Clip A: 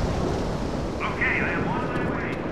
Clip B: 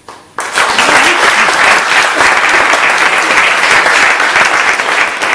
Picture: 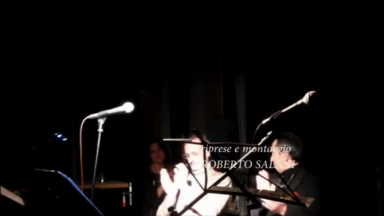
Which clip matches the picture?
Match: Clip B